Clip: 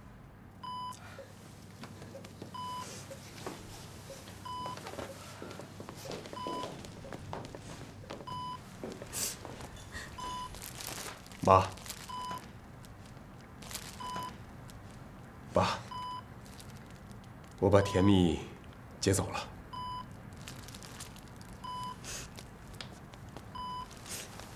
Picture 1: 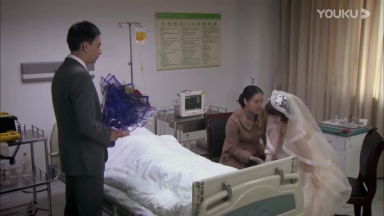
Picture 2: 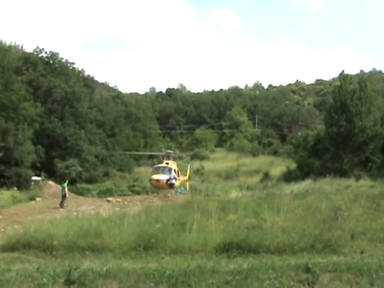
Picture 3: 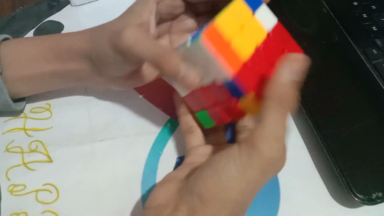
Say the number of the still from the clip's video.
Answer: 1